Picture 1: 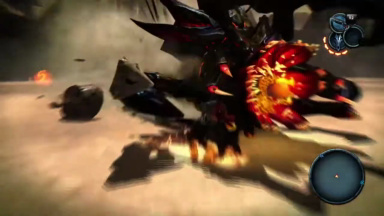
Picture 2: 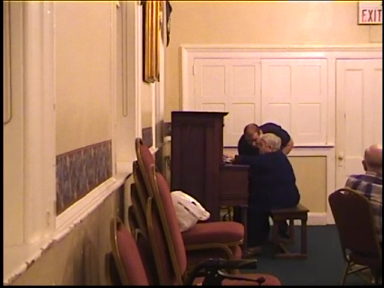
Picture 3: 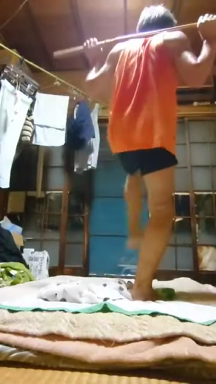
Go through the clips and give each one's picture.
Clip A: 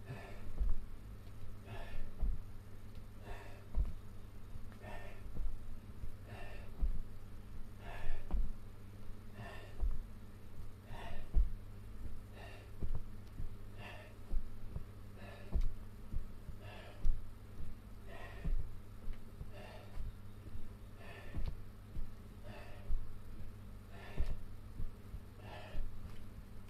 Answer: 3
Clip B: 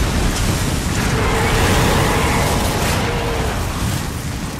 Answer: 1